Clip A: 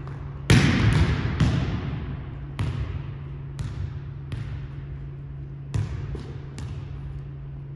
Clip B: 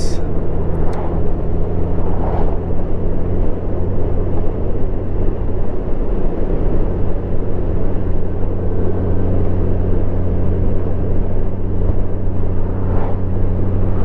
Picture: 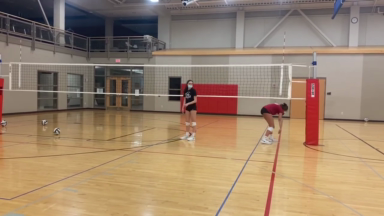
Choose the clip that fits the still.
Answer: A